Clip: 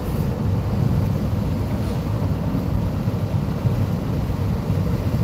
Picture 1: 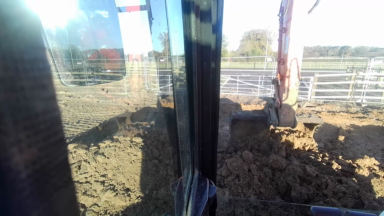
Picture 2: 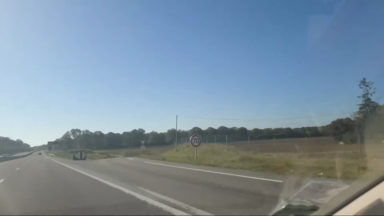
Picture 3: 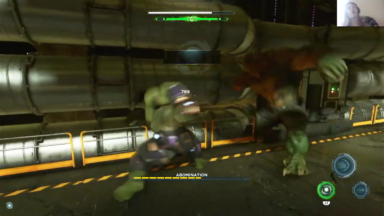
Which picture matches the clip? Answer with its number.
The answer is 2